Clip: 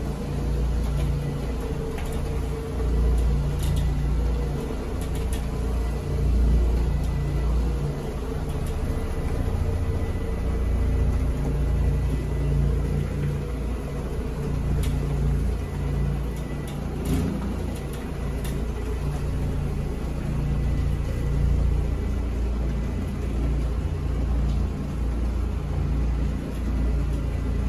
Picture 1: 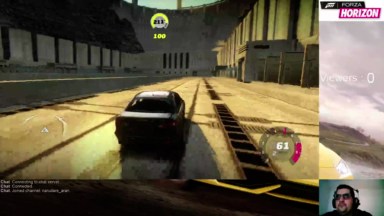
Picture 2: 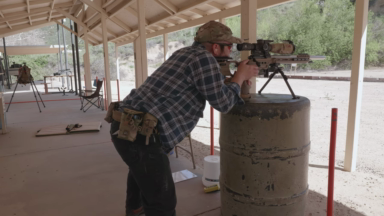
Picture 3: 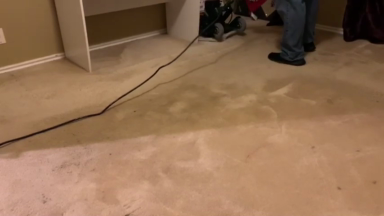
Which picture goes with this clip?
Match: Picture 3